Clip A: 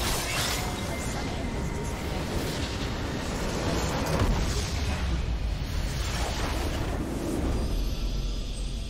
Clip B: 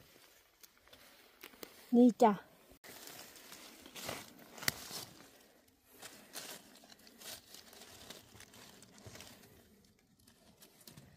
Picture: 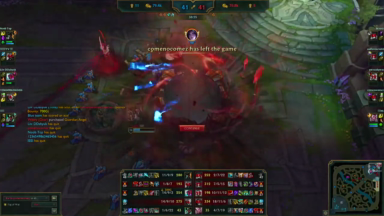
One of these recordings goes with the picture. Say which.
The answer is A